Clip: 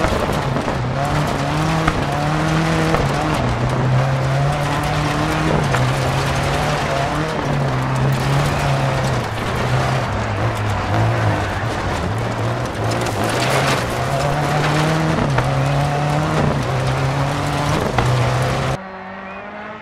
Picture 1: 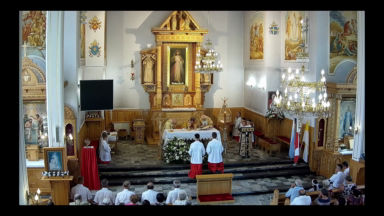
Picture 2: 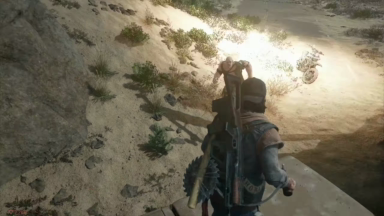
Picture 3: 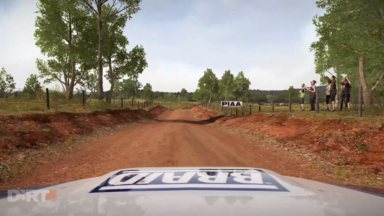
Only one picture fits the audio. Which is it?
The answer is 3